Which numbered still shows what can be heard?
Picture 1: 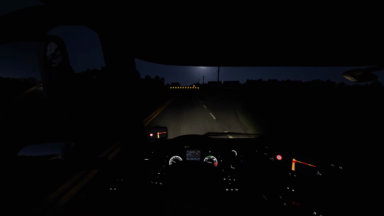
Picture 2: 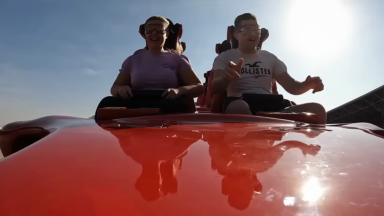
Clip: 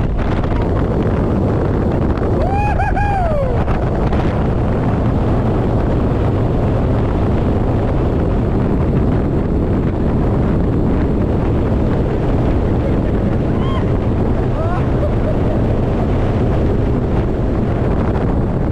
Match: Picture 2